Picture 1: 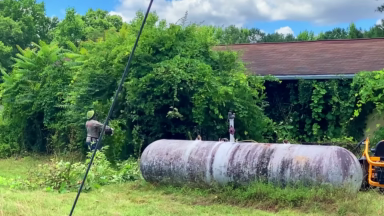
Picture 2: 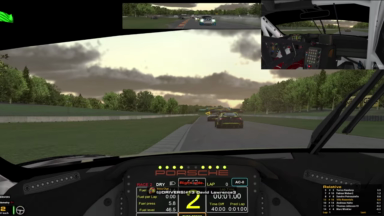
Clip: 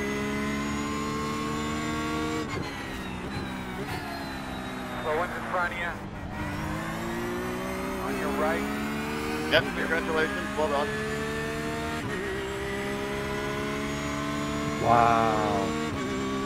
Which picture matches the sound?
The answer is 2